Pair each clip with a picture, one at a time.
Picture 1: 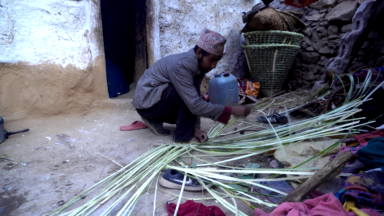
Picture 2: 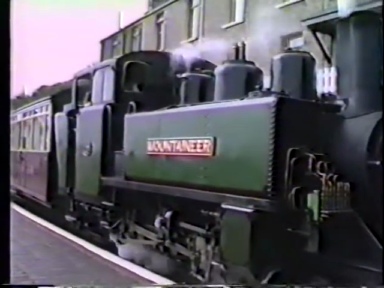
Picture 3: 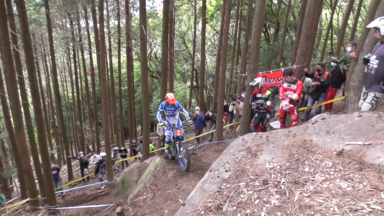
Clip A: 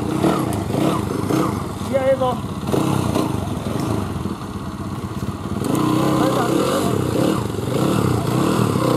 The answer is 3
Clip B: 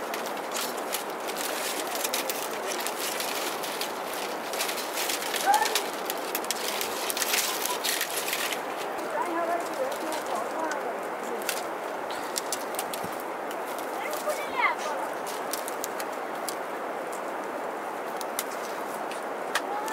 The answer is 1